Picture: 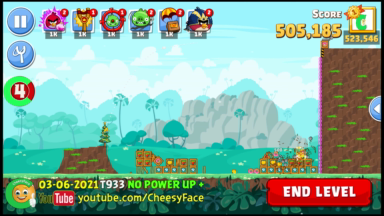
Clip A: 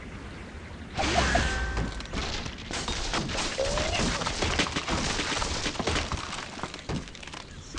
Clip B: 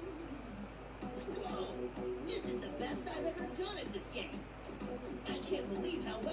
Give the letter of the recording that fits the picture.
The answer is A